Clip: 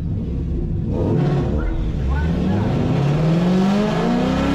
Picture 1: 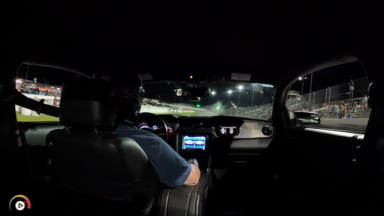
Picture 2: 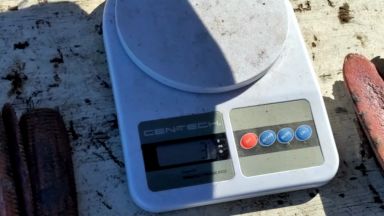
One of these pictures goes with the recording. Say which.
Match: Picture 1